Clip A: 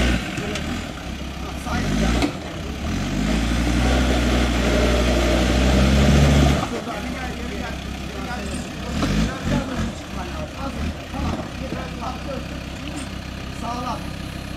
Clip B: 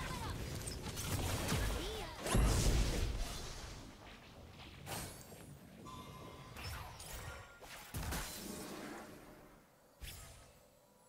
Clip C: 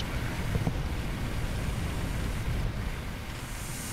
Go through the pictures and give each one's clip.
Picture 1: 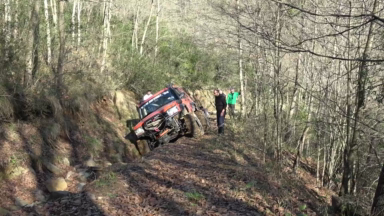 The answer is A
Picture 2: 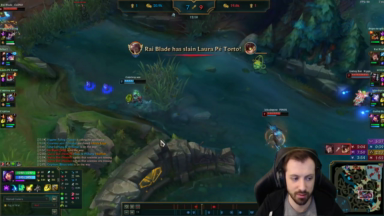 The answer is B